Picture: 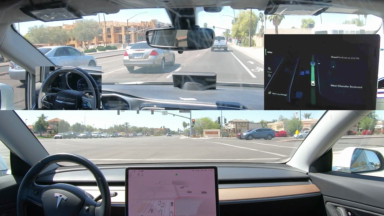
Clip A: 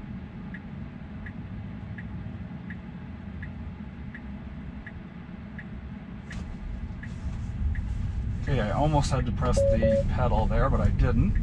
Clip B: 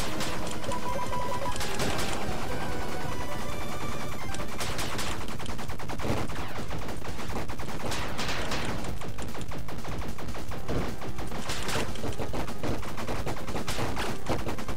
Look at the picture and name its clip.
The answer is A